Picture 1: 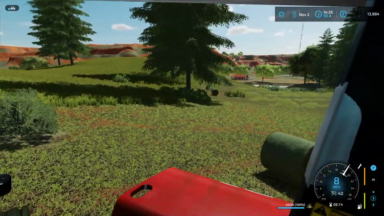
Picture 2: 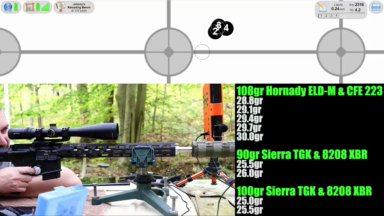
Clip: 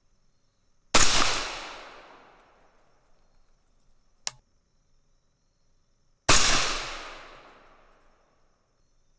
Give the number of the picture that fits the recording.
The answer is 2